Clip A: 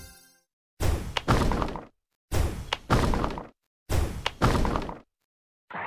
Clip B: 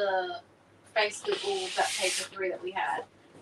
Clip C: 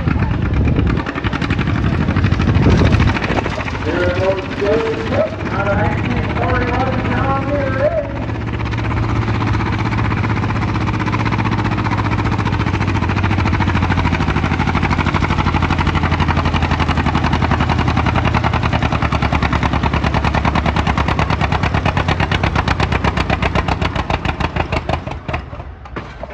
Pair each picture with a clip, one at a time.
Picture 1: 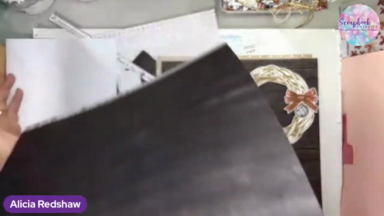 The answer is B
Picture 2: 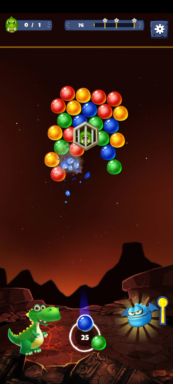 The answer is A